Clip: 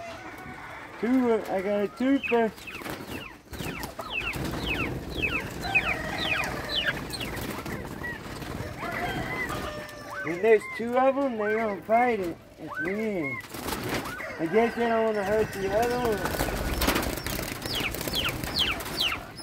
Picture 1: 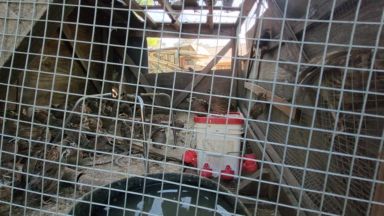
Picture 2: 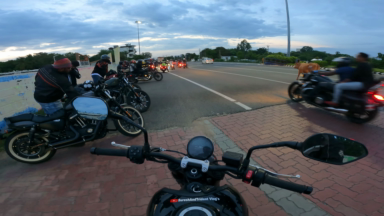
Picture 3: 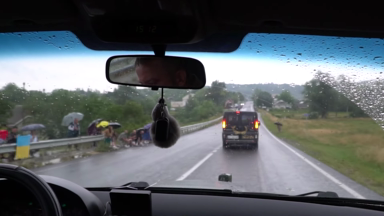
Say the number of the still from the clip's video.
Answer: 1